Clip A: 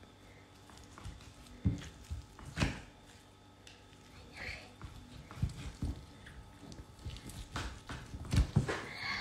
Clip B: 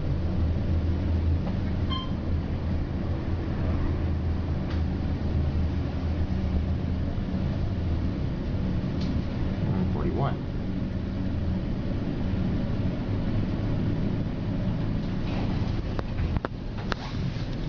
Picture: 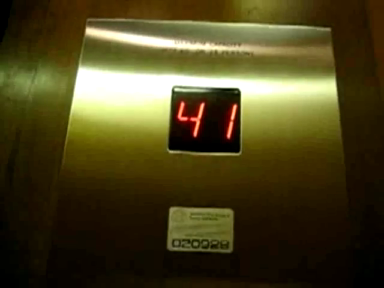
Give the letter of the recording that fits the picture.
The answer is B